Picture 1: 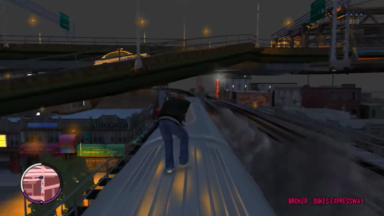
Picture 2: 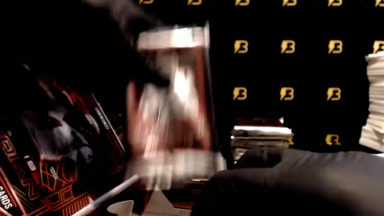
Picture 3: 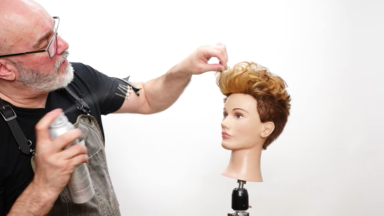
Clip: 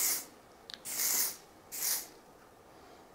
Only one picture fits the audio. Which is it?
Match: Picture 3